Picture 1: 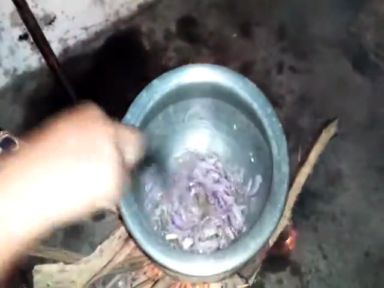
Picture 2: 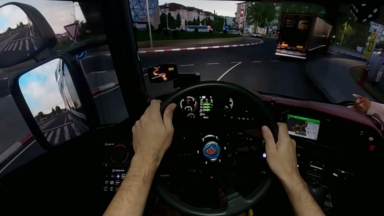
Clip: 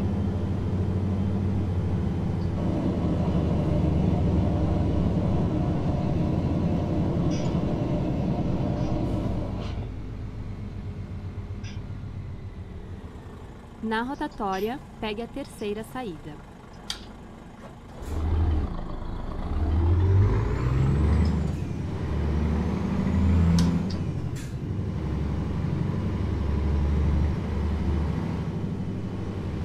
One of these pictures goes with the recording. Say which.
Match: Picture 2